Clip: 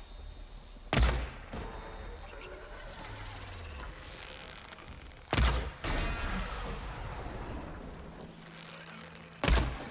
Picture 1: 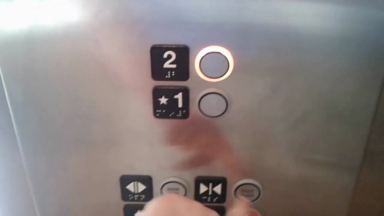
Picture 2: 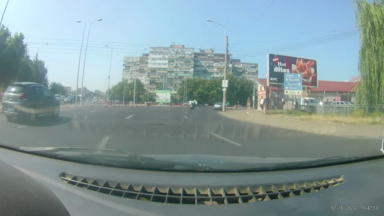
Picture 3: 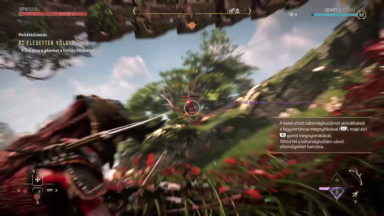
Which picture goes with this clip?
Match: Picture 3